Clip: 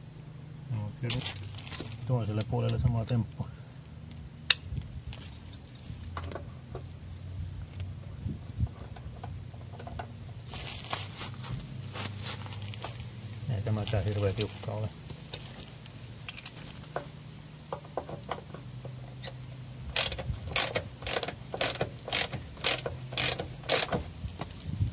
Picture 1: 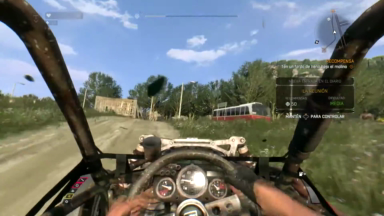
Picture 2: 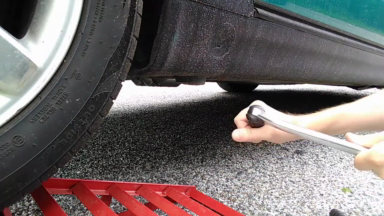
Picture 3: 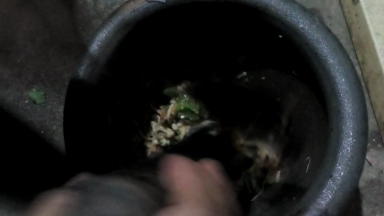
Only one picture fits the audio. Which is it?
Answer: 2